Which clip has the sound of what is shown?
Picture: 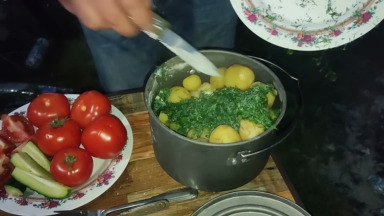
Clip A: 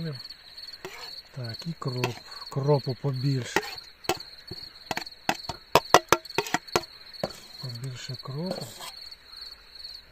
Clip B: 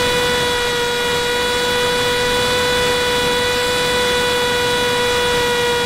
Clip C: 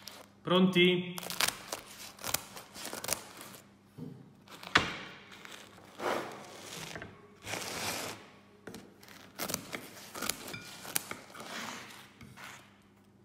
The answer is A